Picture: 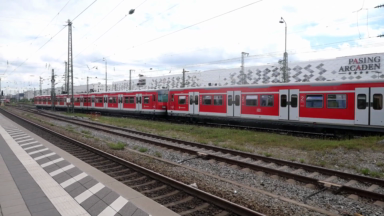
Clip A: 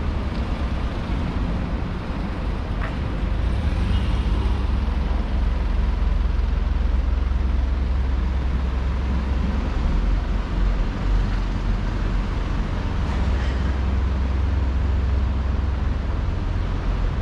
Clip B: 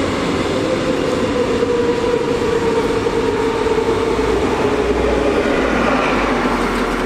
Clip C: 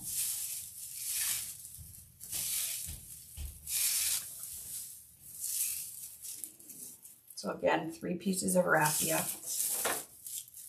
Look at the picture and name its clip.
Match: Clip B